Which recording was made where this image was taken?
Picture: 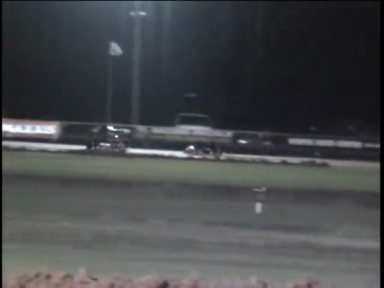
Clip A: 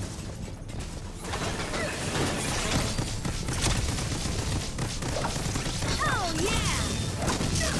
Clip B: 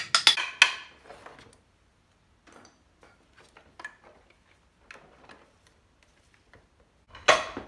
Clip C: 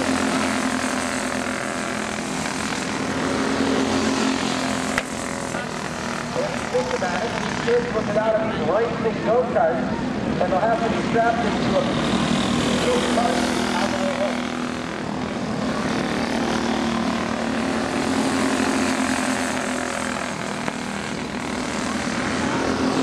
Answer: C